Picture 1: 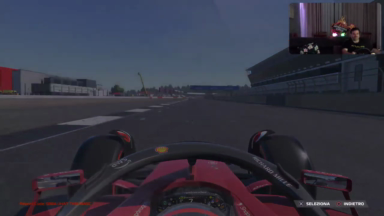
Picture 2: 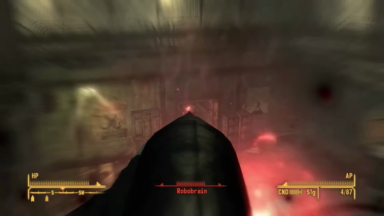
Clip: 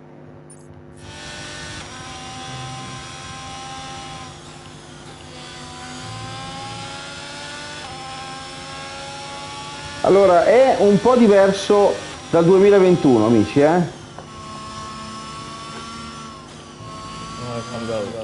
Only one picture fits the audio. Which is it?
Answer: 1